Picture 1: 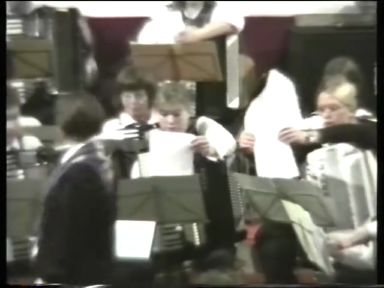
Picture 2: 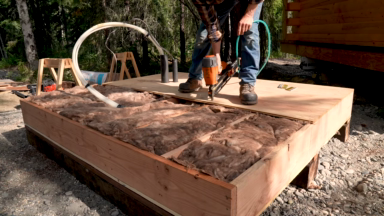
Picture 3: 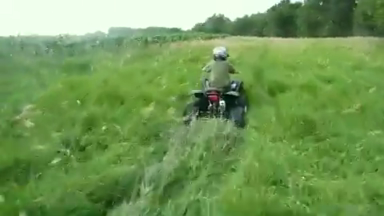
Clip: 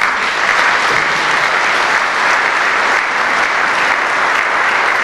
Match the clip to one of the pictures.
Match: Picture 1